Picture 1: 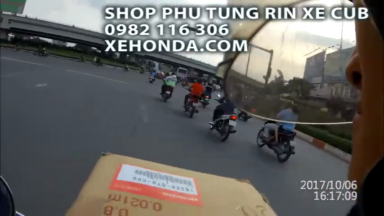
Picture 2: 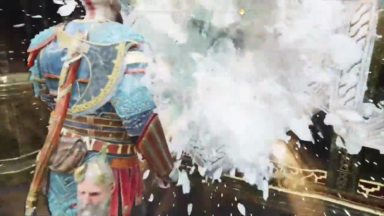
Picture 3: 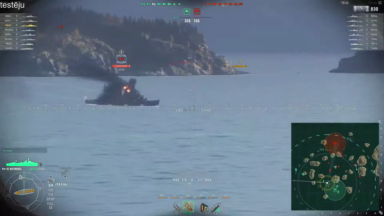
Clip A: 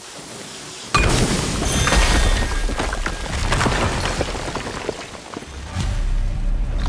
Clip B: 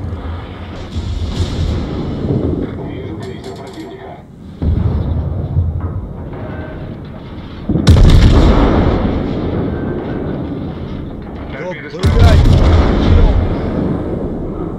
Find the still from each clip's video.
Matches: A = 2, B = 3